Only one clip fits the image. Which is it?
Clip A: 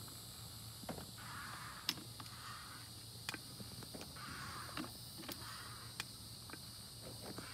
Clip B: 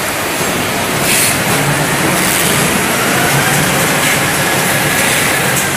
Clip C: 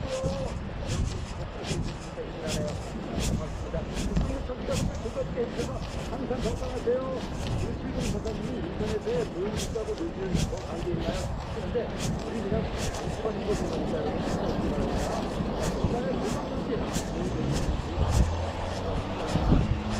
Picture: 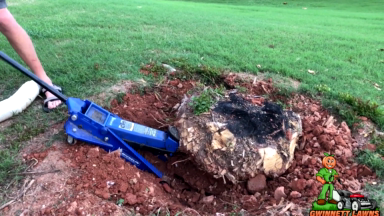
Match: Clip A